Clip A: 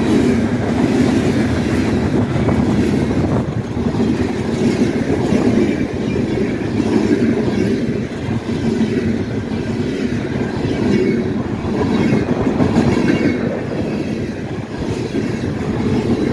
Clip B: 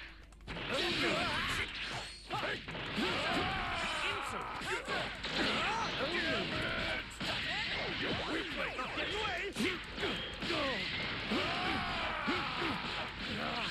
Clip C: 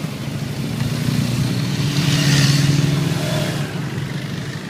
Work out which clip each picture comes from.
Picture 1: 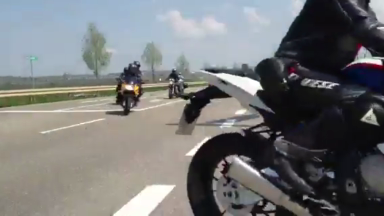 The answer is C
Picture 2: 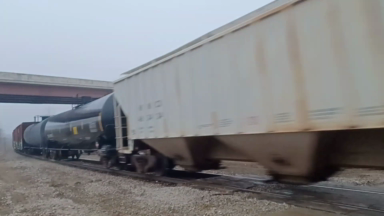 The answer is A